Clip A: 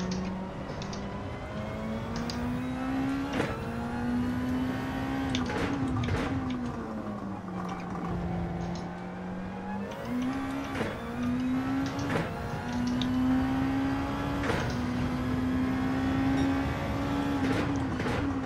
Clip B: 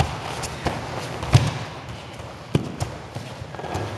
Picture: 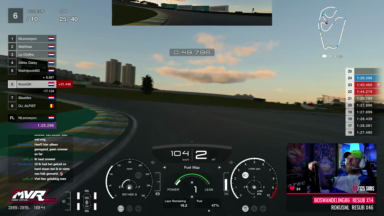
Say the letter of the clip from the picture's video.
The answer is A